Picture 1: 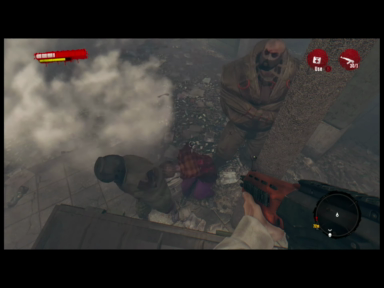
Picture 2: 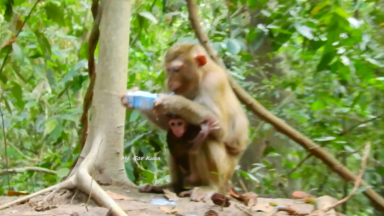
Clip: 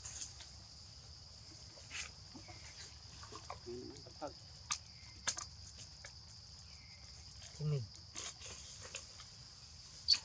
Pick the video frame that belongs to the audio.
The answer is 2